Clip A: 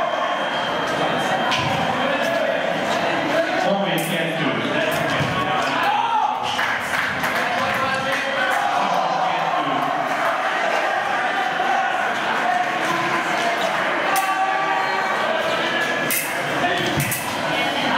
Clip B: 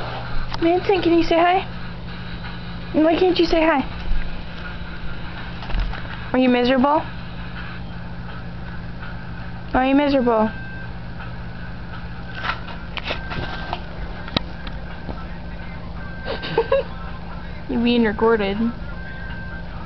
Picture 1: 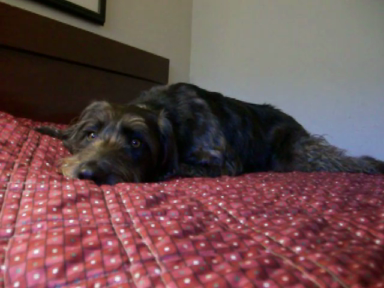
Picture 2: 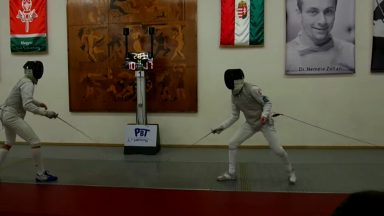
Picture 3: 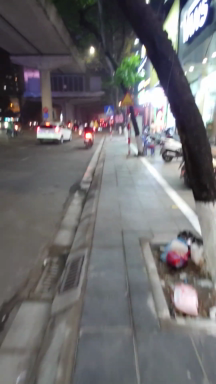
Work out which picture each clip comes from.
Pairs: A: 2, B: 1